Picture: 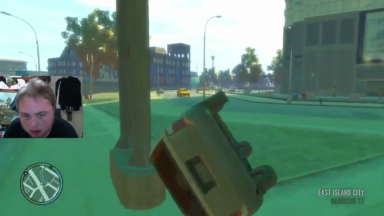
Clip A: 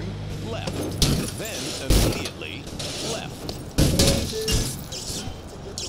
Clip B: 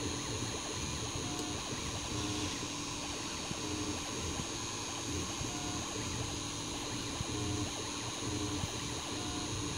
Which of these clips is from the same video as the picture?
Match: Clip A